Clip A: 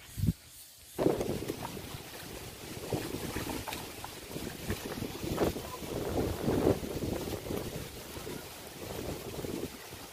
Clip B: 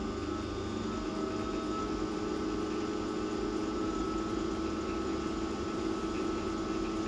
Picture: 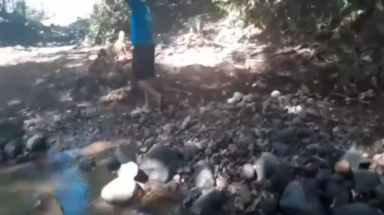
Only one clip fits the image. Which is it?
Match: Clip A